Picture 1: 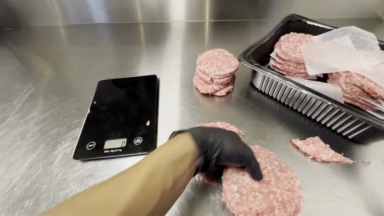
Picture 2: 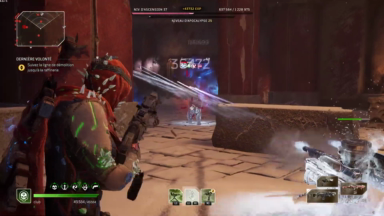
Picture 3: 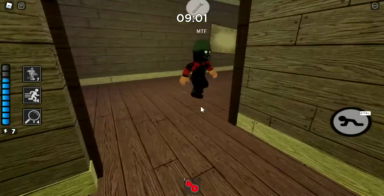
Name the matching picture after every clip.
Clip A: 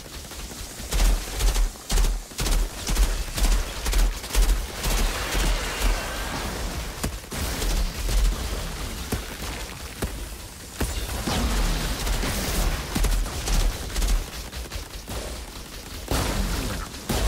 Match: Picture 2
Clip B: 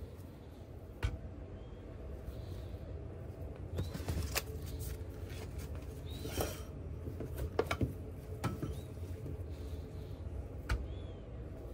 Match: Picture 1